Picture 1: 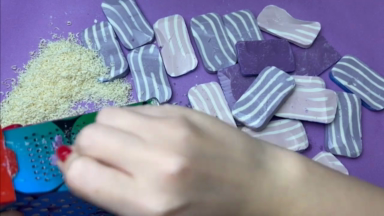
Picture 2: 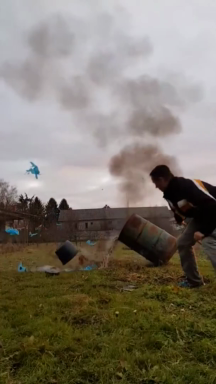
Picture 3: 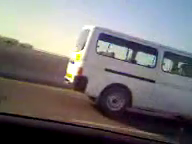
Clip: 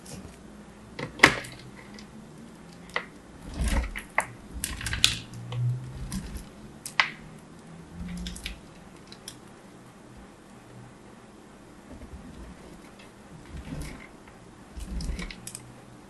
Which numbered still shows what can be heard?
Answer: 1